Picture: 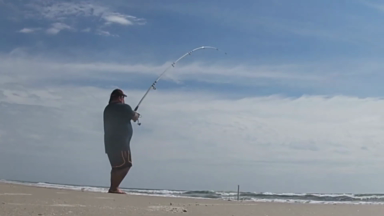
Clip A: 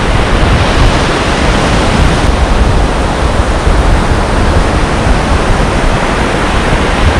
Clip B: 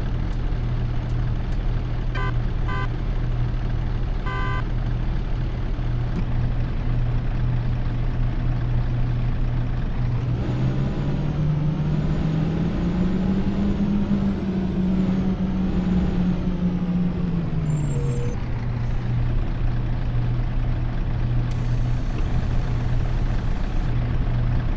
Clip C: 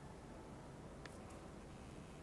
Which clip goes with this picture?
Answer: A